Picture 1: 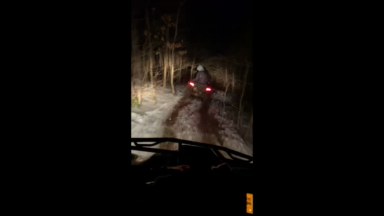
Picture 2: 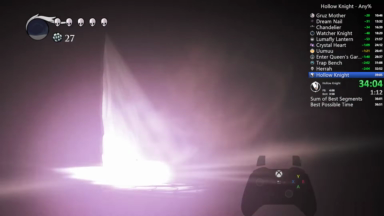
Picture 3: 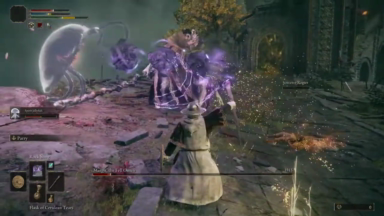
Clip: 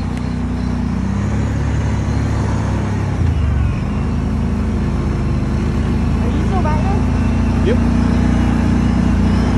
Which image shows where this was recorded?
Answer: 1